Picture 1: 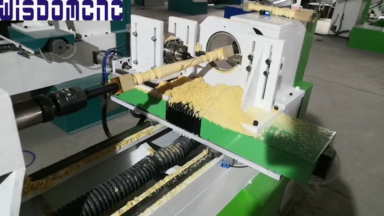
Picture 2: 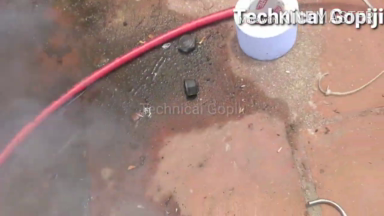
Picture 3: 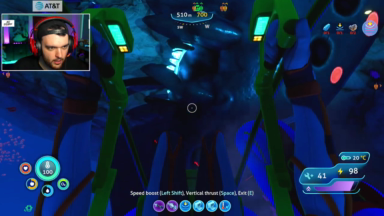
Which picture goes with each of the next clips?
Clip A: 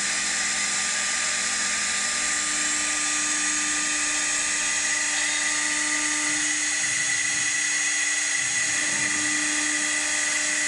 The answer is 1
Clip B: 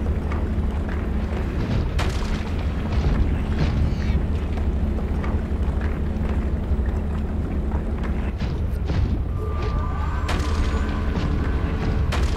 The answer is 3